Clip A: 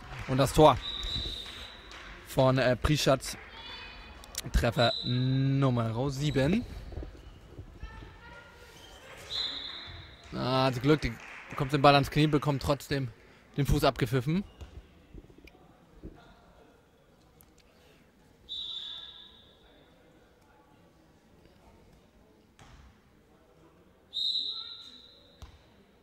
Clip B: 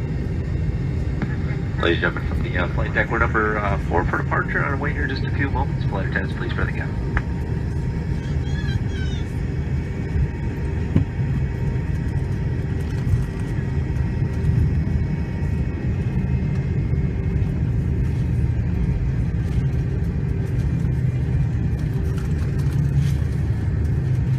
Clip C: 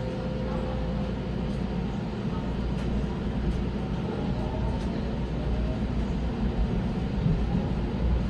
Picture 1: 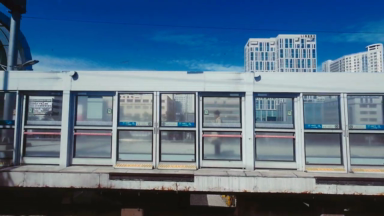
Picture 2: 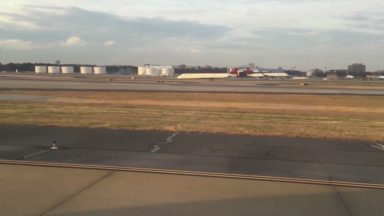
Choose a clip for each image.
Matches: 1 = C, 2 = B